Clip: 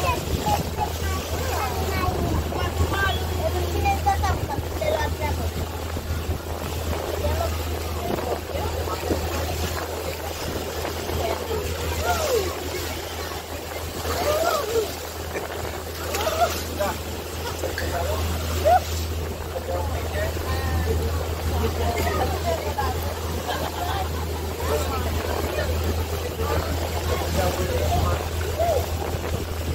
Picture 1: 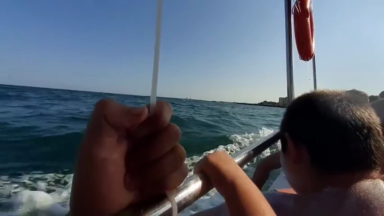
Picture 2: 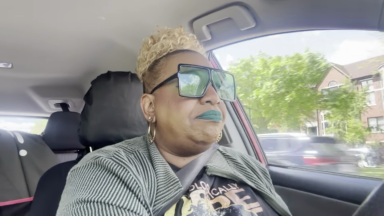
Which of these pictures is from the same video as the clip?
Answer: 1